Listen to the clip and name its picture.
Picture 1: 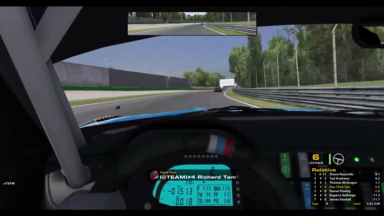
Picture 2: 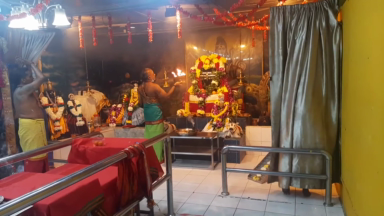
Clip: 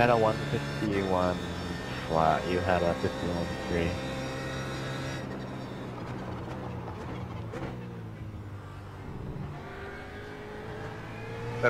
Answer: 1